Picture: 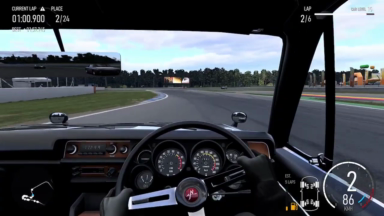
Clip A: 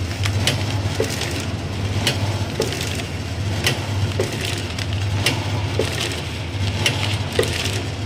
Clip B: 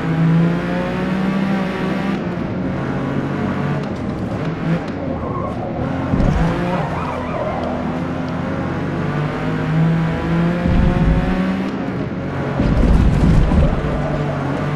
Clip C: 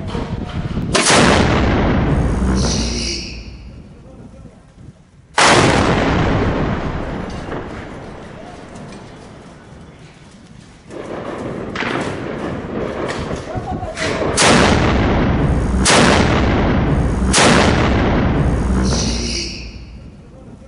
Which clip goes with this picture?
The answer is B